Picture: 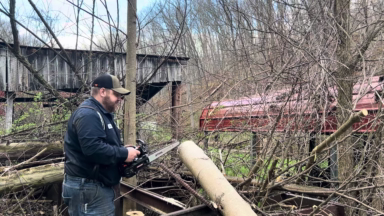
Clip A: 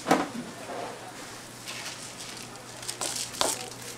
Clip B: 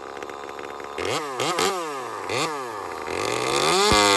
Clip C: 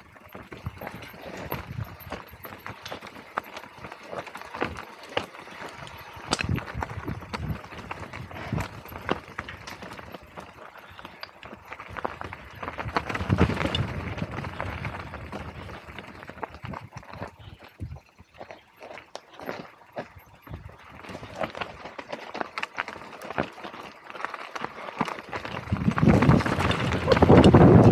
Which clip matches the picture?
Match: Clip B